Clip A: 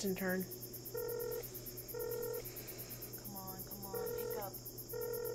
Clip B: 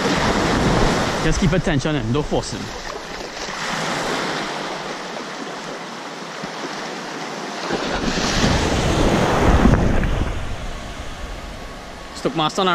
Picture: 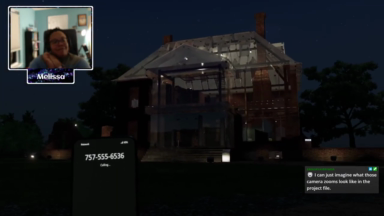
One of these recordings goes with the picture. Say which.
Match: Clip A